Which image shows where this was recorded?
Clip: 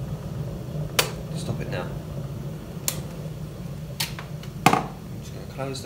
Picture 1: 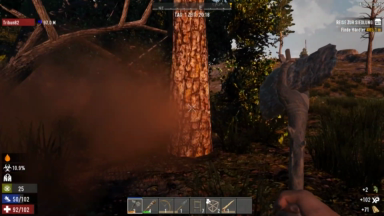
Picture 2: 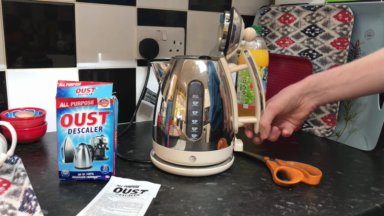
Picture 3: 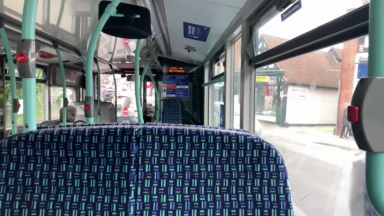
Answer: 2